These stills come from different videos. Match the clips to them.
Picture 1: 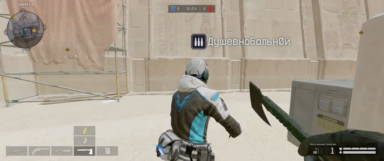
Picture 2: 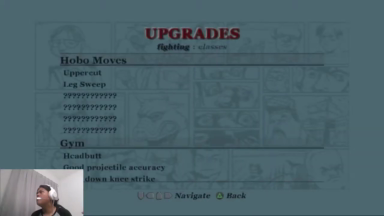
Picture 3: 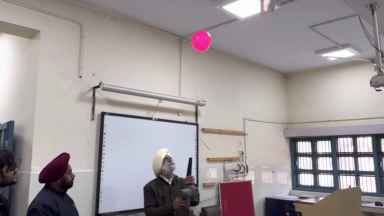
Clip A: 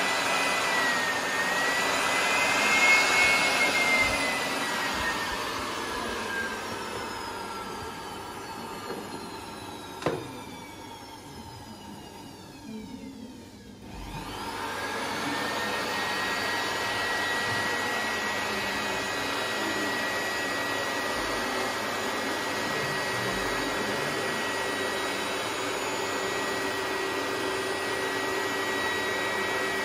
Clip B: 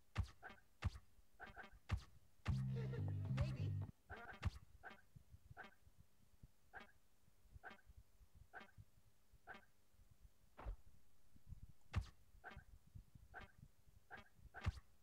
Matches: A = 3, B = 2